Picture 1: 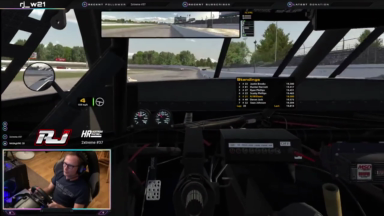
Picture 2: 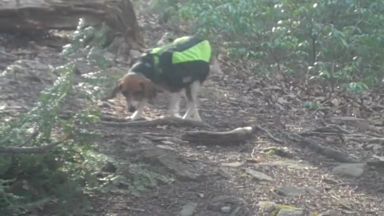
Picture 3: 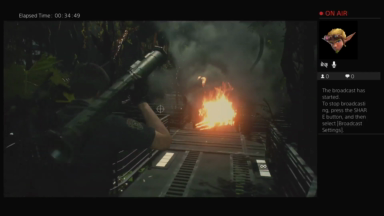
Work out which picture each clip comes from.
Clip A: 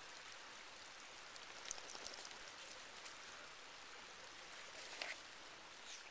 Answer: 2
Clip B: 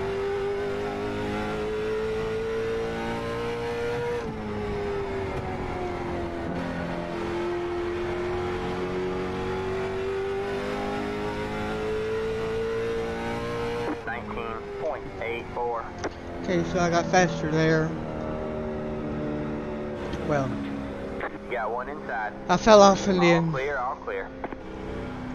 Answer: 1